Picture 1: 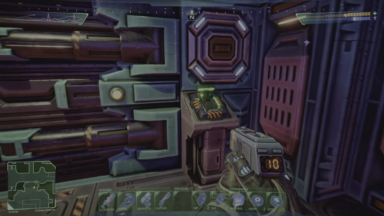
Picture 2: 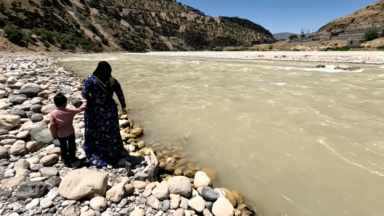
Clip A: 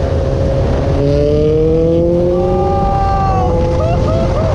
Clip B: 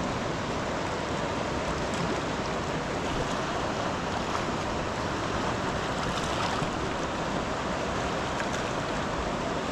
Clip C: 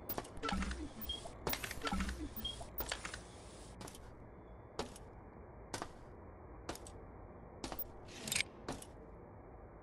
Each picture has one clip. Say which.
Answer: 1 C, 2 B